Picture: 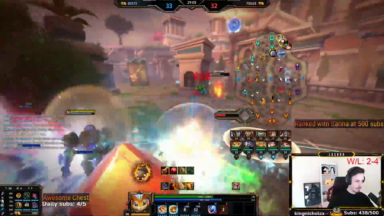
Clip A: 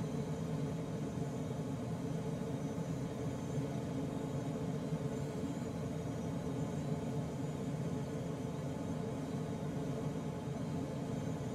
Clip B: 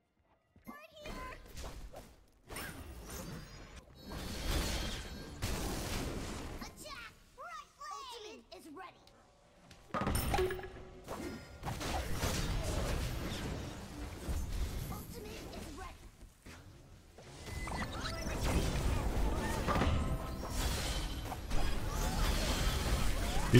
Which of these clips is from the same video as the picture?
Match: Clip B